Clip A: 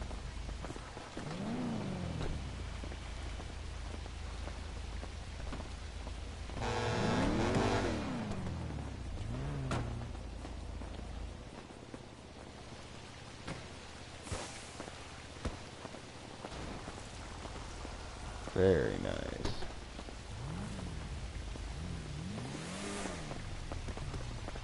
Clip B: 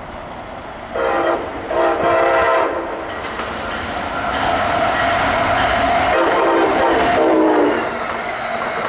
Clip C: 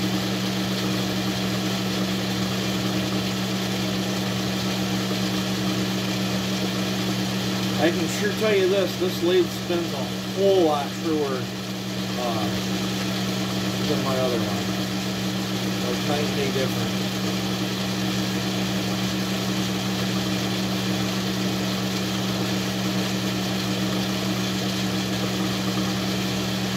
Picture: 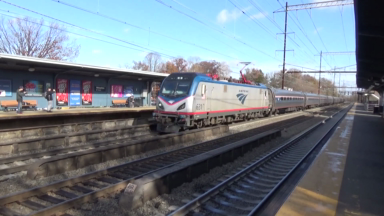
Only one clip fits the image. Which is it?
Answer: B